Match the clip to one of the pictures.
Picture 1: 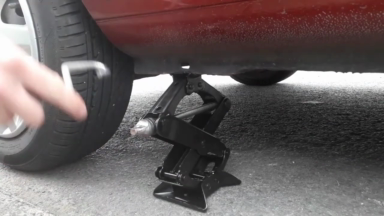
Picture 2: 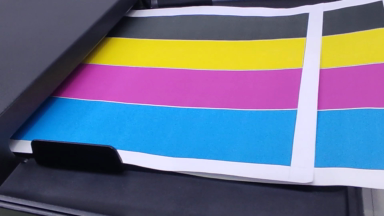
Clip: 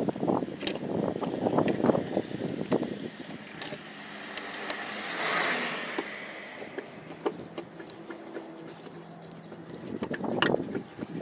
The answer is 1